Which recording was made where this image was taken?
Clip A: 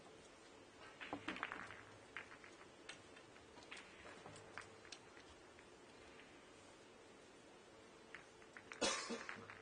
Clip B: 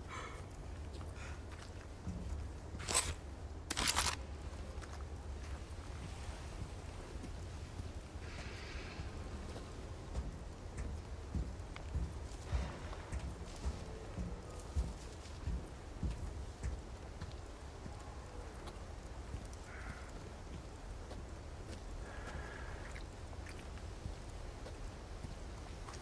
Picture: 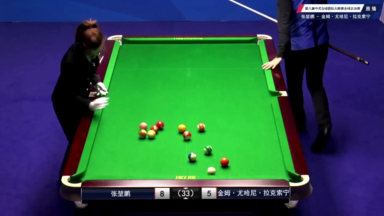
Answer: A